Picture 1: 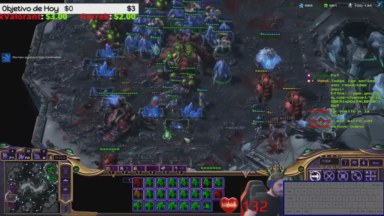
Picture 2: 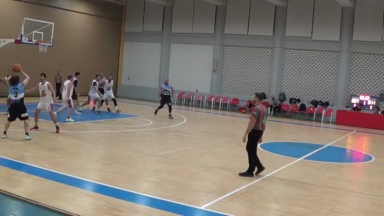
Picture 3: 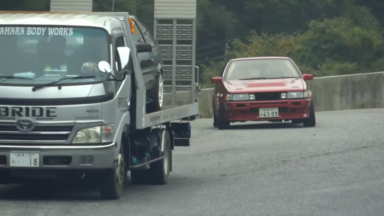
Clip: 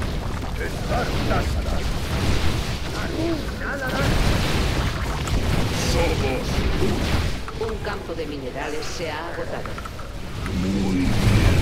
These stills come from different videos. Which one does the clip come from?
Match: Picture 1